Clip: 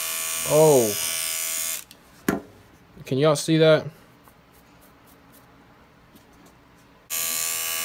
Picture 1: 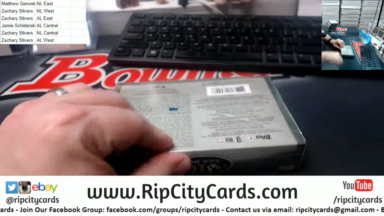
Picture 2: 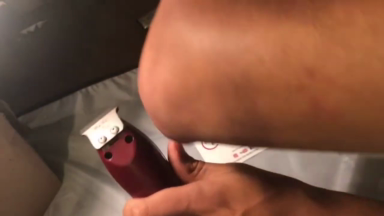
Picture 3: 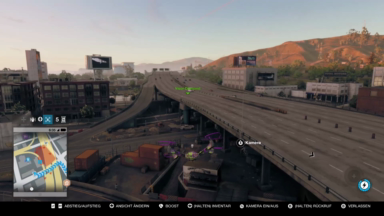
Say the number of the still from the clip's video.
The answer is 2